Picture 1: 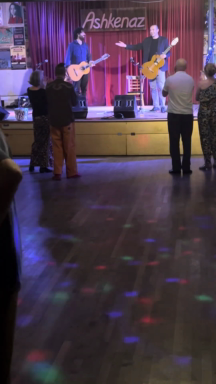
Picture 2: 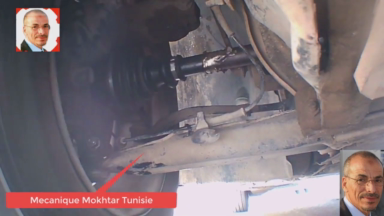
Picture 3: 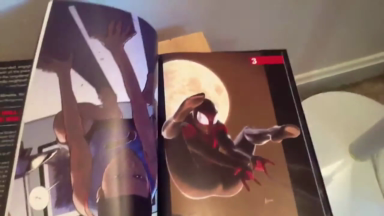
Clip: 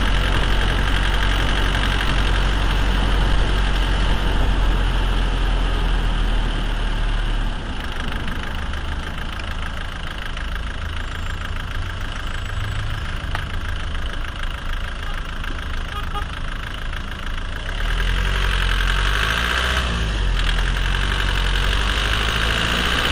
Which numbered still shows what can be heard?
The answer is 2